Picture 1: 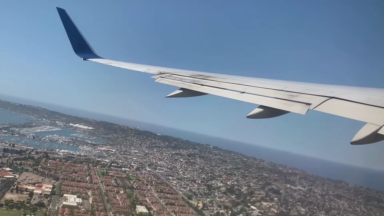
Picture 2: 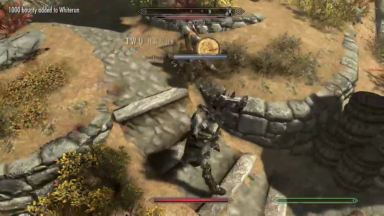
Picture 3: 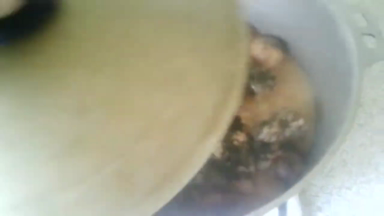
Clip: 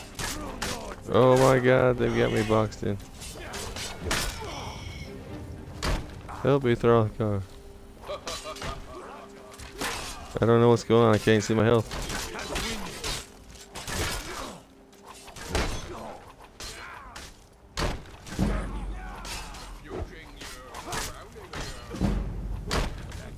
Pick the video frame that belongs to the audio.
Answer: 2